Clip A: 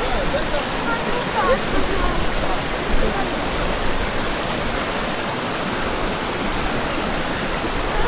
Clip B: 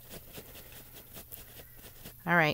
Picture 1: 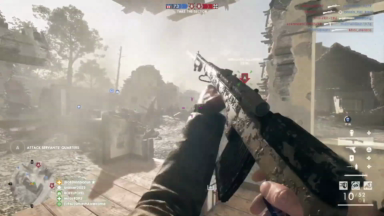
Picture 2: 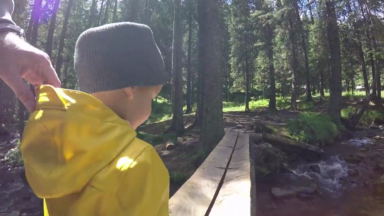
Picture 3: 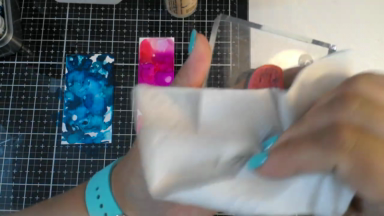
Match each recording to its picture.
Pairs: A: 2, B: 3